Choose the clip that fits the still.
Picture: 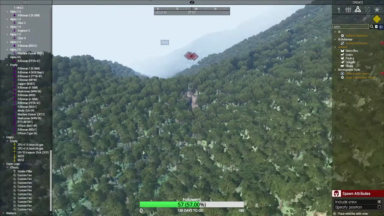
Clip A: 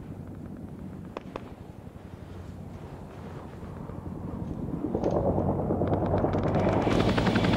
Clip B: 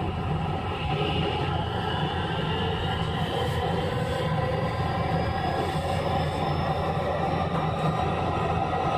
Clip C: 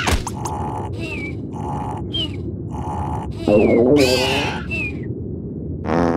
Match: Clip A